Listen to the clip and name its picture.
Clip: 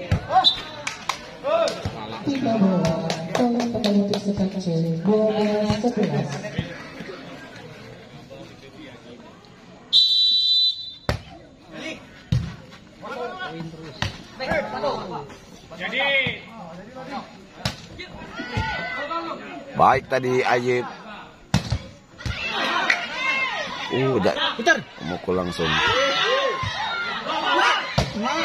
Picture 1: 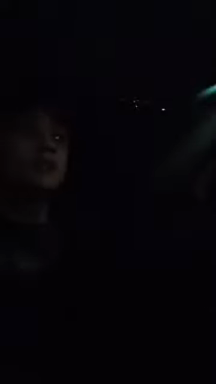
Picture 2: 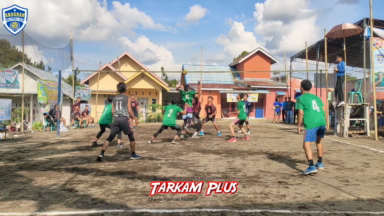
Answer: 2